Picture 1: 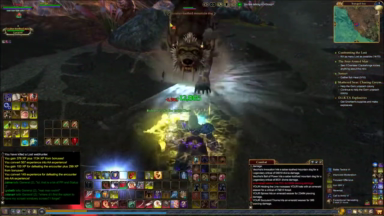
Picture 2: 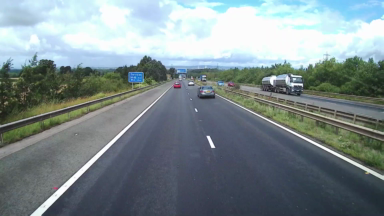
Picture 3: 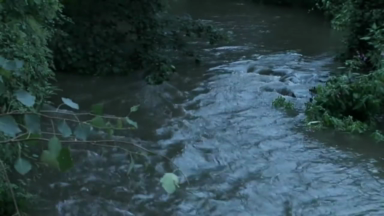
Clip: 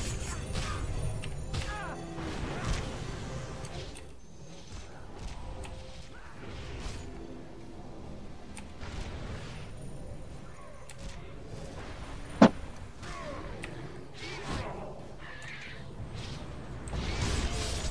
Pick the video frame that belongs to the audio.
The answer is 1